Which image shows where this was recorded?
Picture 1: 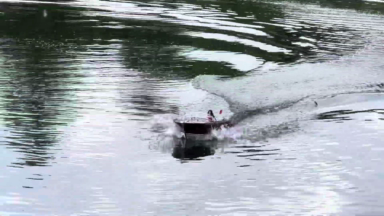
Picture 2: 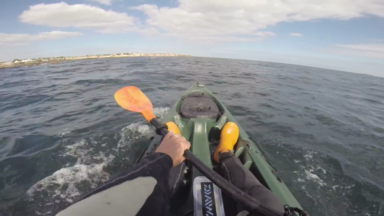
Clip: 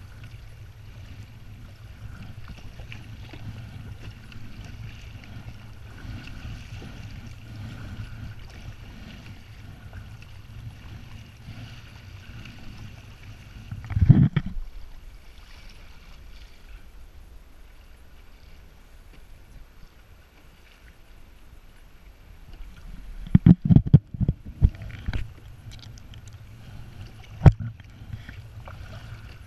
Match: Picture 2